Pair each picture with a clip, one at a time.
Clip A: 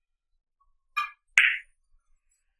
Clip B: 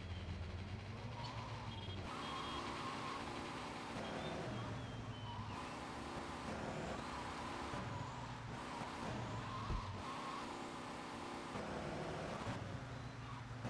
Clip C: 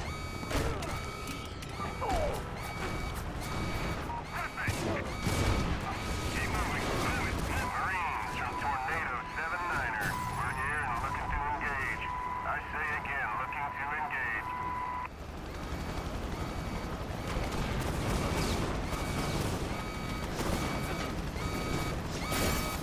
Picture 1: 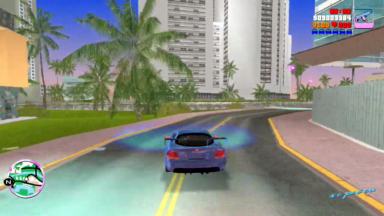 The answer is B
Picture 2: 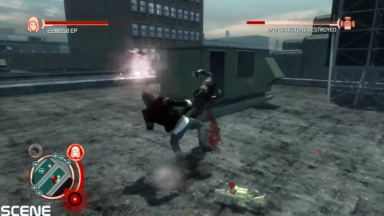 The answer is C